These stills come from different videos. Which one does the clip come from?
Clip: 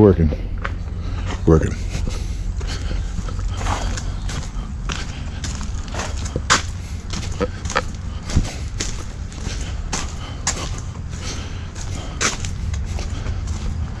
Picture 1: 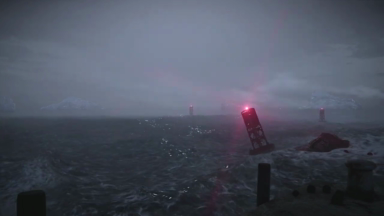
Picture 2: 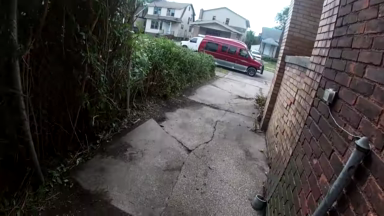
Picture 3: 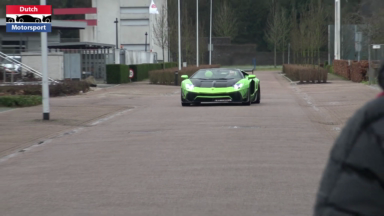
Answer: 2